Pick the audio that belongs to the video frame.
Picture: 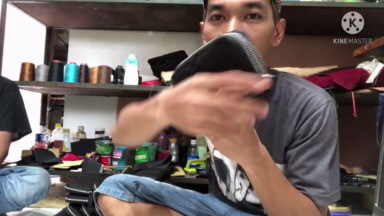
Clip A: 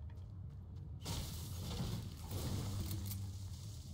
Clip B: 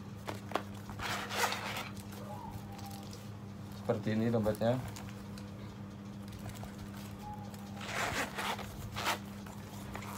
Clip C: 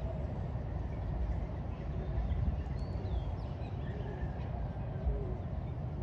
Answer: B